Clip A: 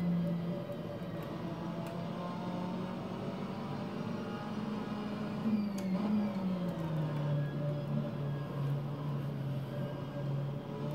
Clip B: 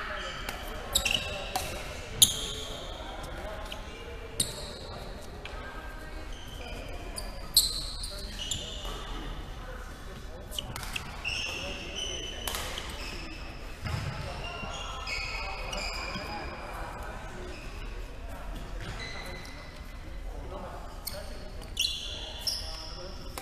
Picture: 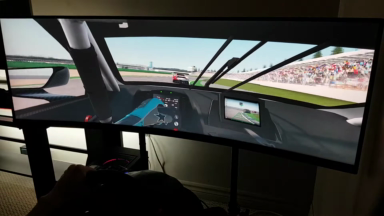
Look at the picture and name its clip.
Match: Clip A